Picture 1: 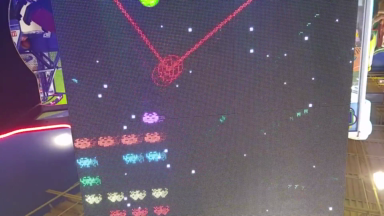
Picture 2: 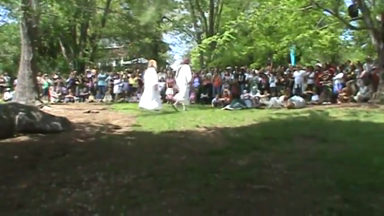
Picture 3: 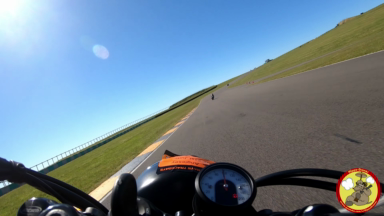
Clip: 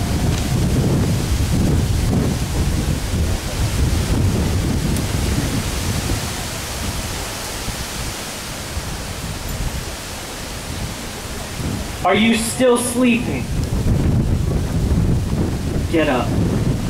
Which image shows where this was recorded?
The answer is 2